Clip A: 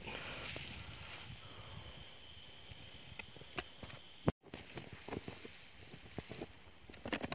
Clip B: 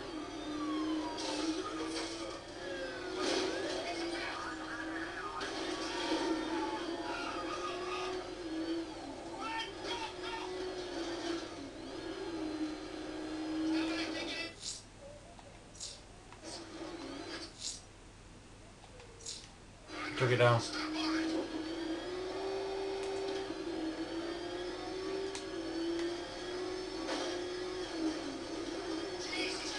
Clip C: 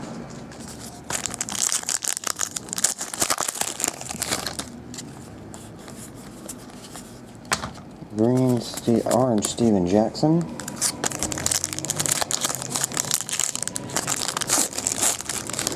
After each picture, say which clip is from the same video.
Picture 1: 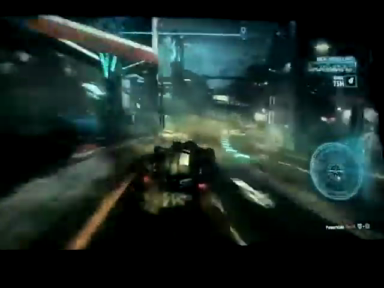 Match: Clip B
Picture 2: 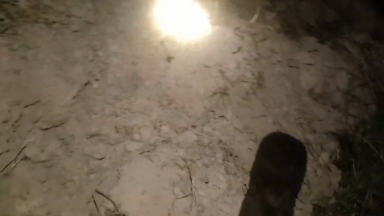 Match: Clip A